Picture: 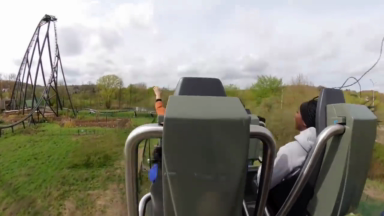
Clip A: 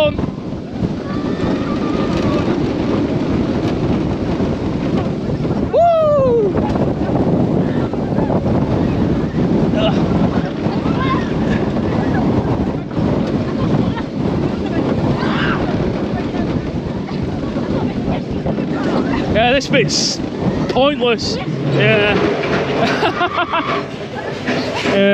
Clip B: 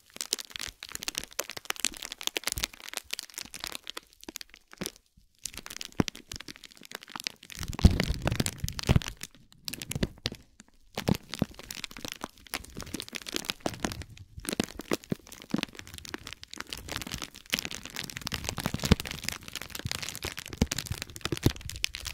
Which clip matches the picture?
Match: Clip A